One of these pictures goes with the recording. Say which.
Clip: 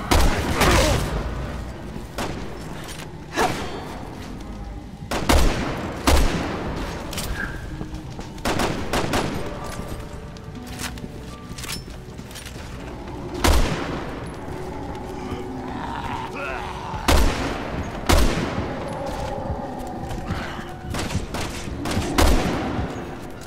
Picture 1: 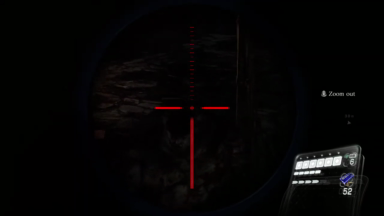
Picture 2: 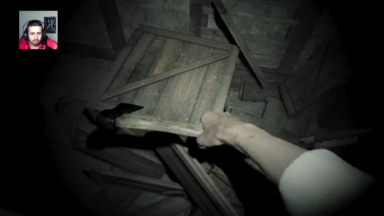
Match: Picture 1